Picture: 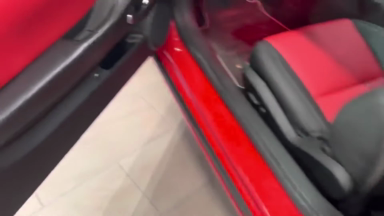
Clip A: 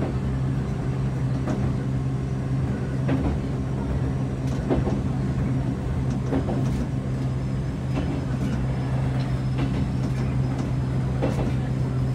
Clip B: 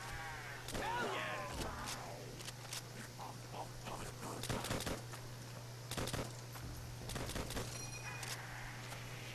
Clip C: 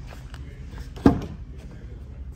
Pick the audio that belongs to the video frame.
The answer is C